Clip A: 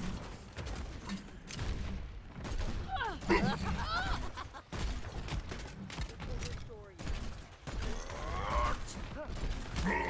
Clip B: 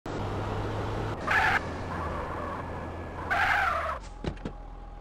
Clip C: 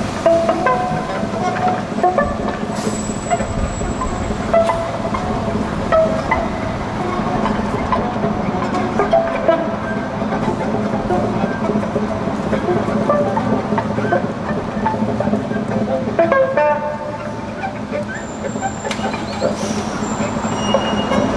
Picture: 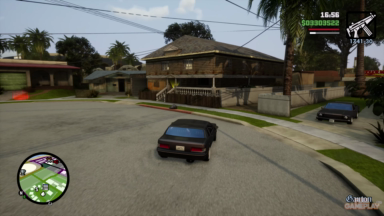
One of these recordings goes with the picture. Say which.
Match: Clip B